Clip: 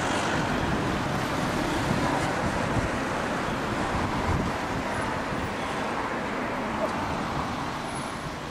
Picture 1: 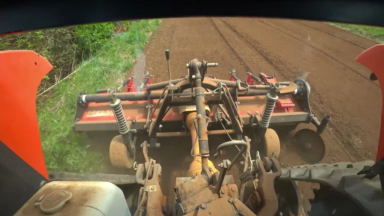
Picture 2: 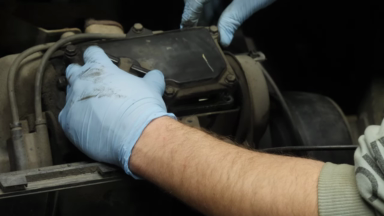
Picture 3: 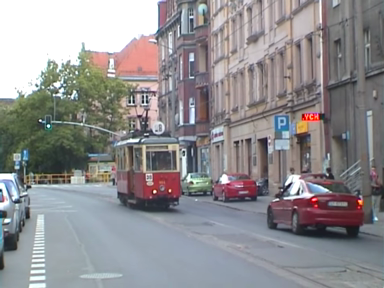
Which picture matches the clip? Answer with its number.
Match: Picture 3